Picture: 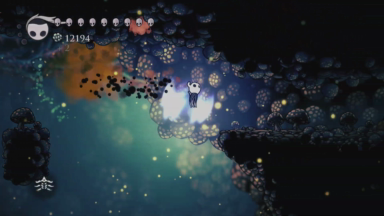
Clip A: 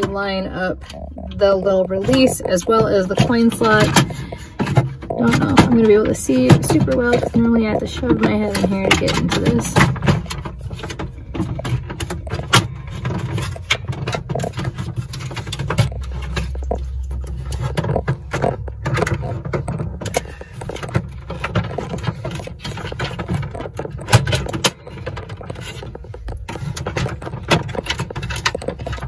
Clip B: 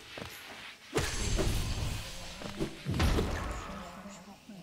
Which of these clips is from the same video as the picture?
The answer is B